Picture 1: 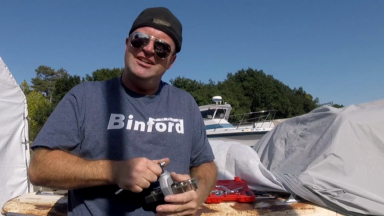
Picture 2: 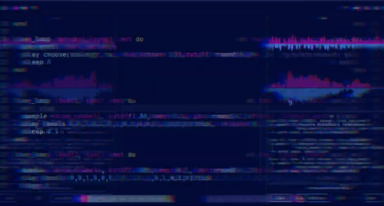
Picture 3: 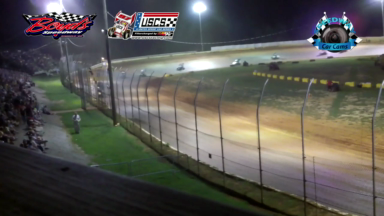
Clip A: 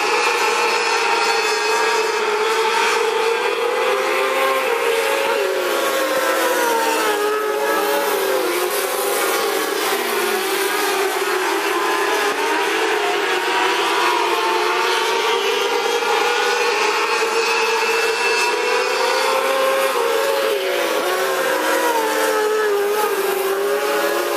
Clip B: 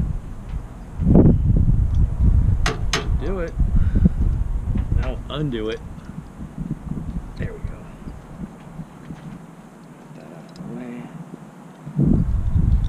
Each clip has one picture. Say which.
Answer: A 3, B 1